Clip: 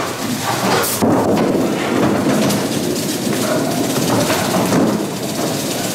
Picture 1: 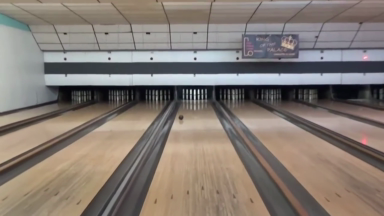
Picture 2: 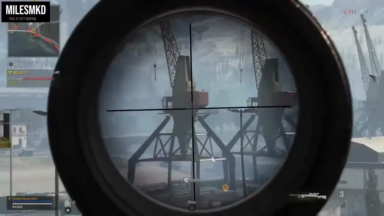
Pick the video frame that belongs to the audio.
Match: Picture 1